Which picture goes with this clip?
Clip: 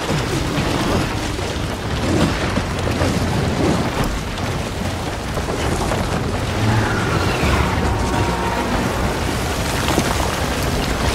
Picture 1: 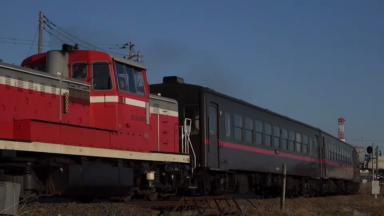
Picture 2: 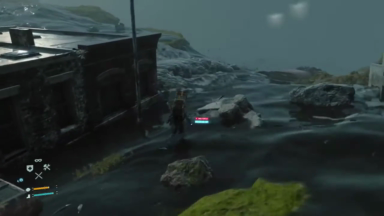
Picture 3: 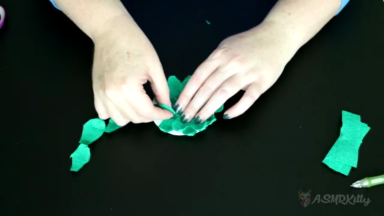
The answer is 2